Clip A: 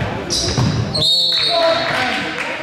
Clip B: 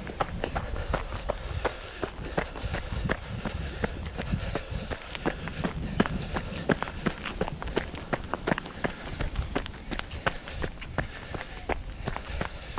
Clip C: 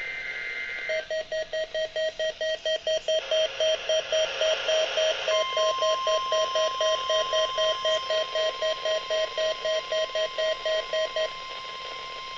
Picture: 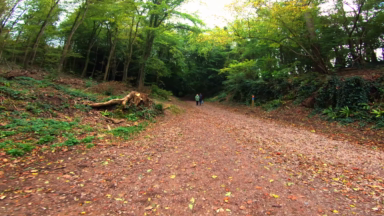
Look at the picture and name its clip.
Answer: B